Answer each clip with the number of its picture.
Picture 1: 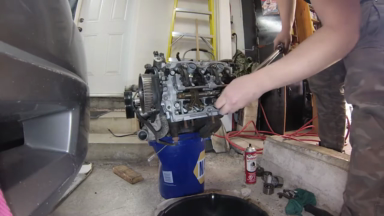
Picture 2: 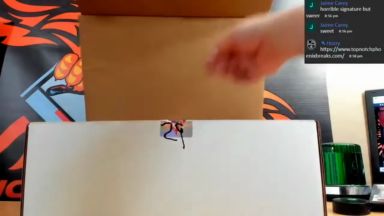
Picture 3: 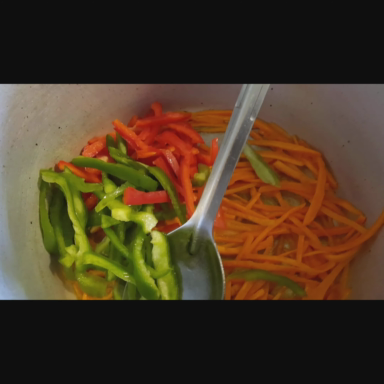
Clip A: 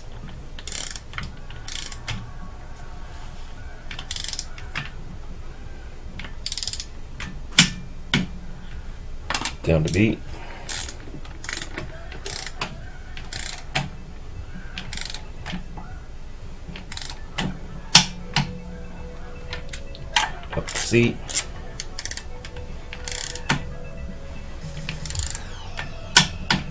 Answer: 1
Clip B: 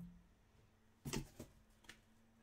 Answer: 2